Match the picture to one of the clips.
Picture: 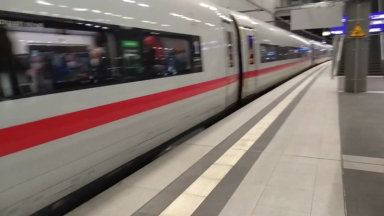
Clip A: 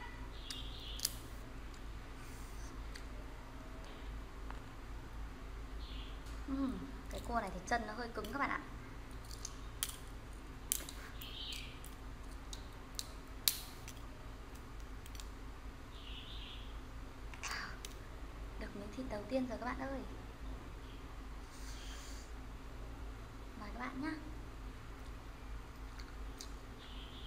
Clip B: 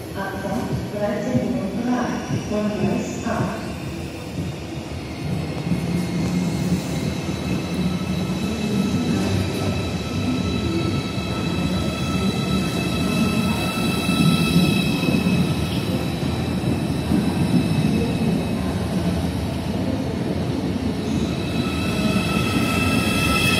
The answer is B